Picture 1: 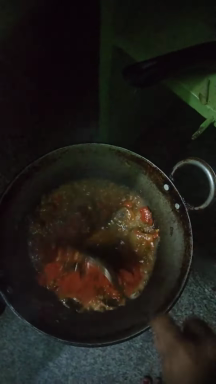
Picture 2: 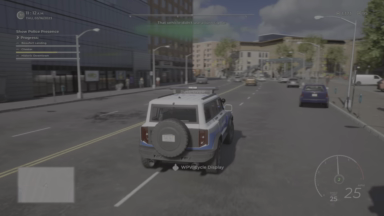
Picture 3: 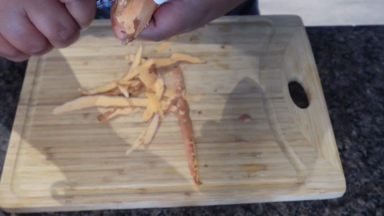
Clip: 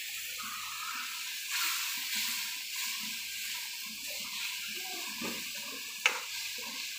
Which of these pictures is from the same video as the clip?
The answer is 1